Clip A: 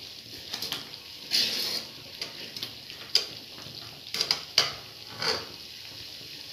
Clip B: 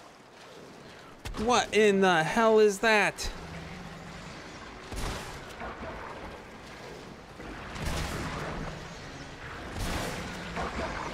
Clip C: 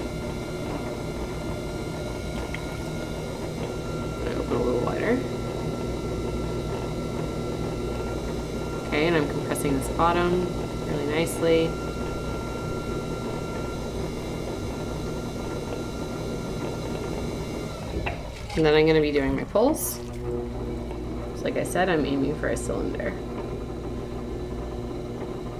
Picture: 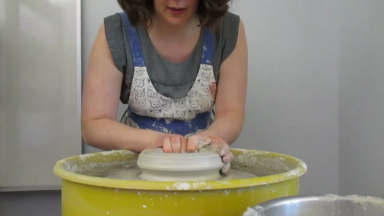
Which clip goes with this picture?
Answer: C